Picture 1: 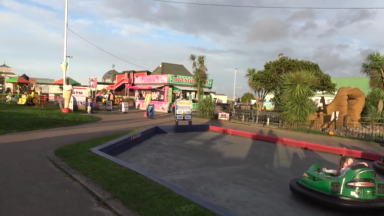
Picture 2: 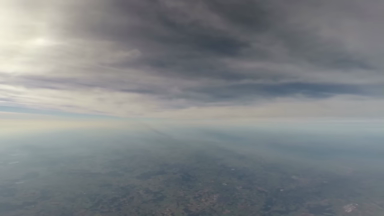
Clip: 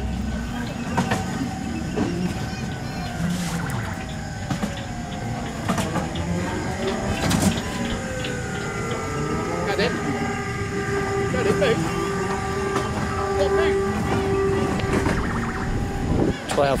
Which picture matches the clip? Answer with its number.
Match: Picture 1